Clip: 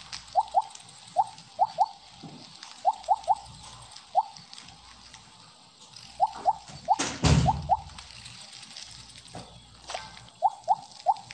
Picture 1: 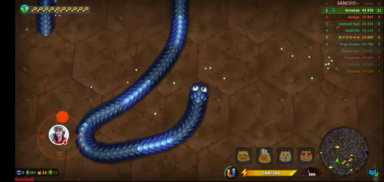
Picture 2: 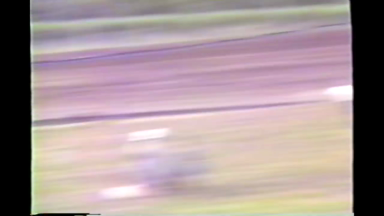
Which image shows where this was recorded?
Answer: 1